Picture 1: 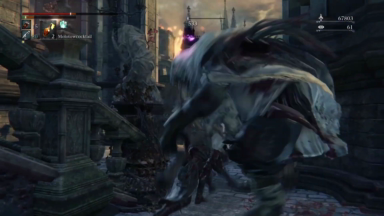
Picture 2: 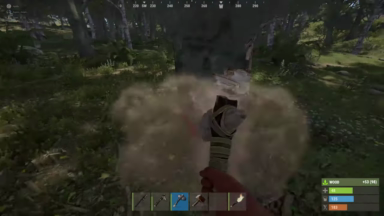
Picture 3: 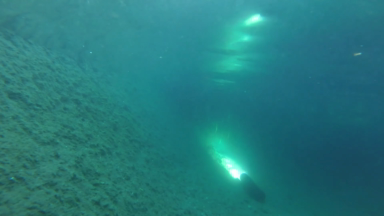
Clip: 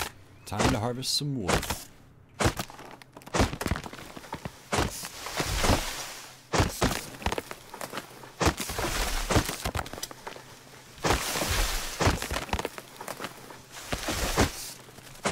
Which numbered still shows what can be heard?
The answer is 2